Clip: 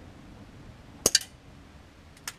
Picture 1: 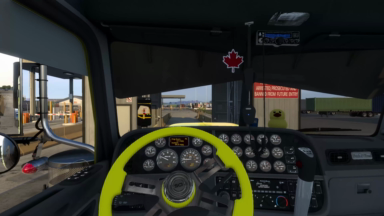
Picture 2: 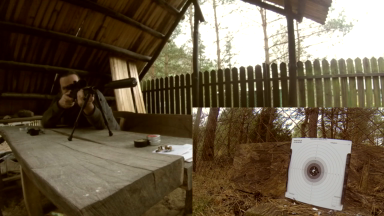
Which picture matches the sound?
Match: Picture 2